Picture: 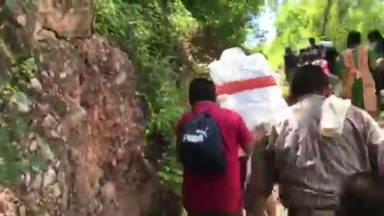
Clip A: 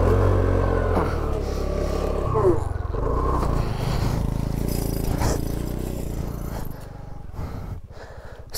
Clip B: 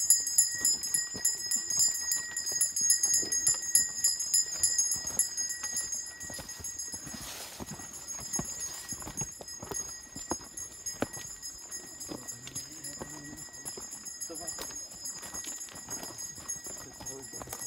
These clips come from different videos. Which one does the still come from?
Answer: B